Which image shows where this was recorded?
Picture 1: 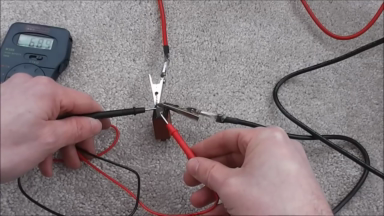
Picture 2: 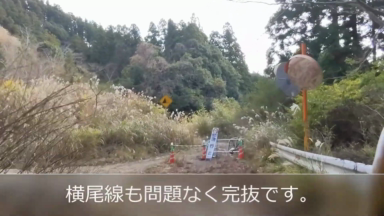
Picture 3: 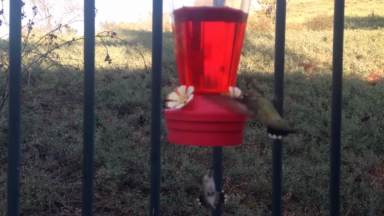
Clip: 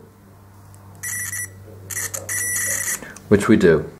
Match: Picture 1